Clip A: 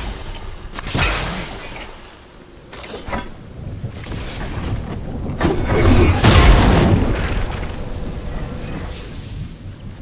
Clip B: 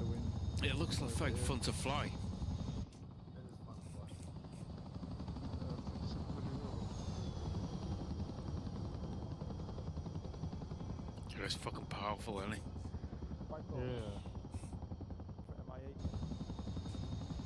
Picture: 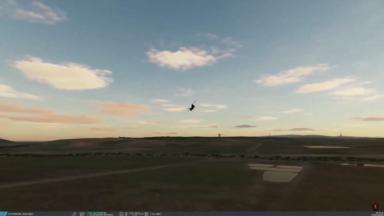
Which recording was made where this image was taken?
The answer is B